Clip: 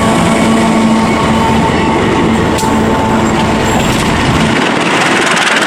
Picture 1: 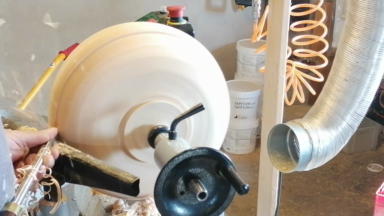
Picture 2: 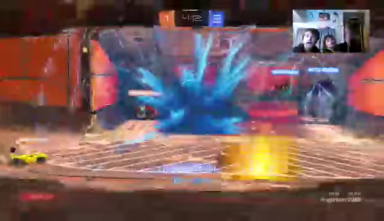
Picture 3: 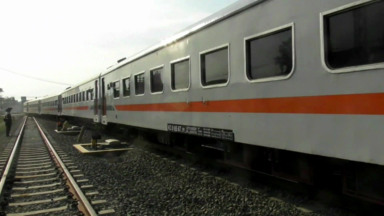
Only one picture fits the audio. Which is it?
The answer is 3